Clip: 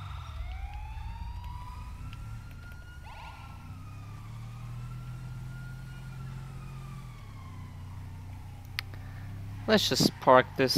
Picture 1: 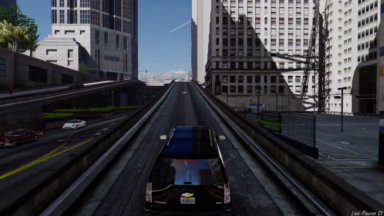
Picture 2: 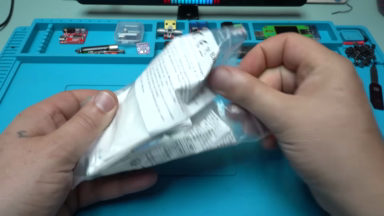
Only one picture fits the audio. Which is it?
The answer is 1